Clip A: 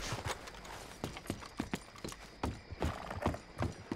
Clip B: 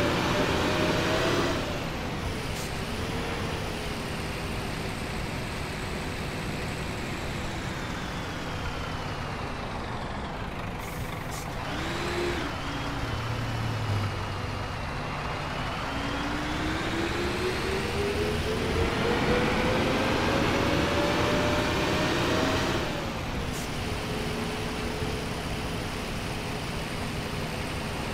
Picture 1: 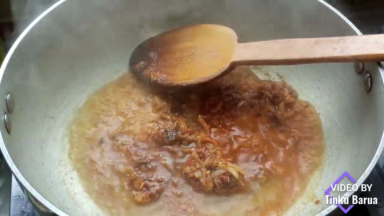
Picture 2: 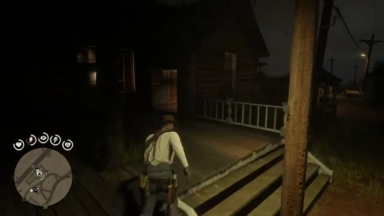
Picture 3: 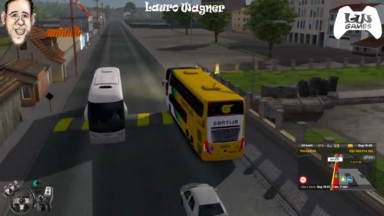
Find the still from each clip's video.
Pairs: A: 2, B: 3